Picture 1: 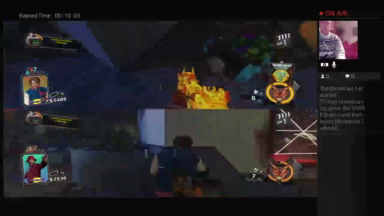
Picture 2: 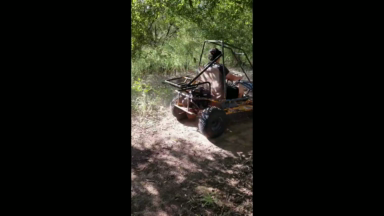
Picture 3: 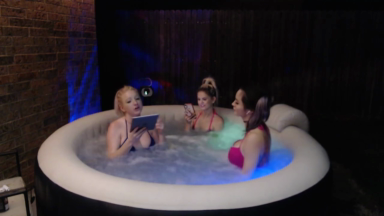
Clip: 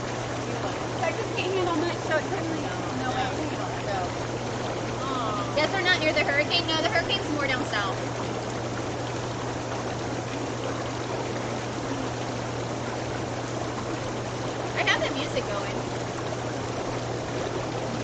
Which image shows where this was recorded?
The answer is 3